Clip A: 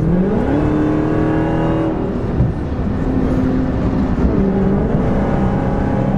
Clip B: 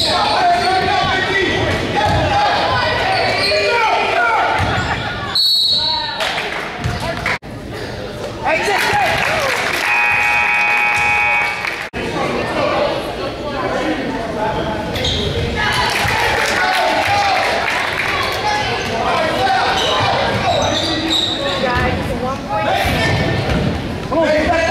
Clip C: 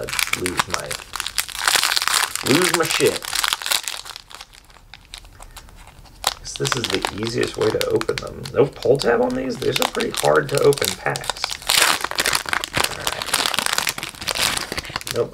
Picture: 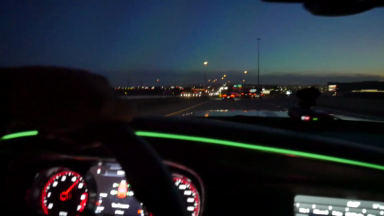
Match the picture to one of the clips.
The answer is A